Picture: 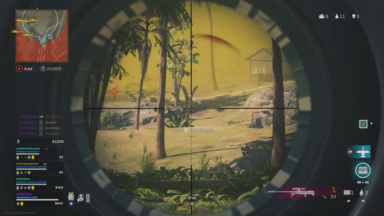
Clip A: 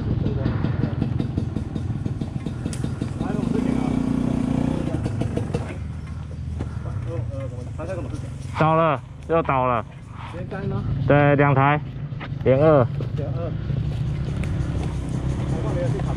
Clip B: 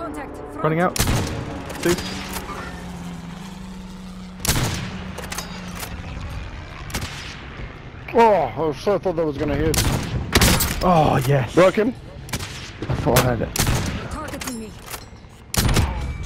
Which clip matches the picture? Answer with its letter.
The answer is B